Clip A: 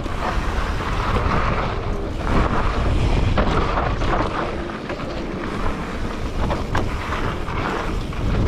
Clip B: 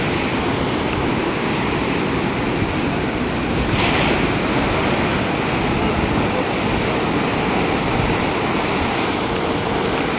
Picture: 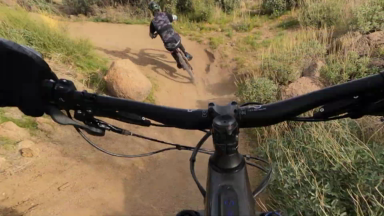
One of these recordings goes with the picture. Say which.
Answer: A